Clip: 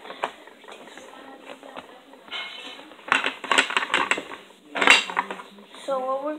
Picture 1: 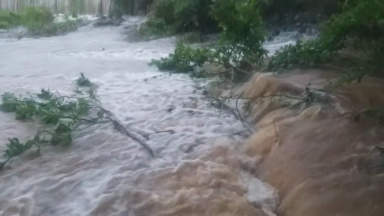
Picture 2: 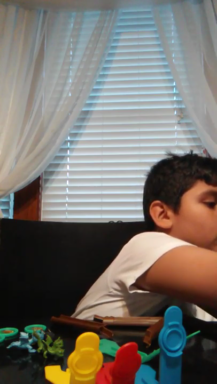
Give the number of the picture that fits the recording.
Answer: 2